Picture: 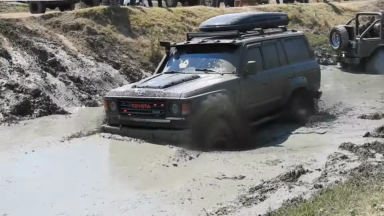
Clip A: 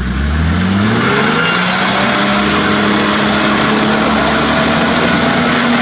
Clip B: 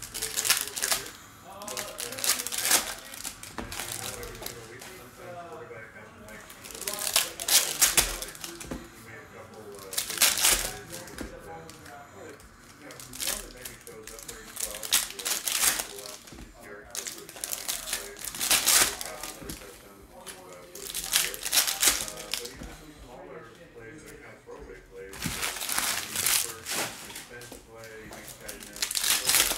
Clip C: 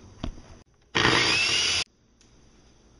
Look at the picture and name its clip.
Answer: A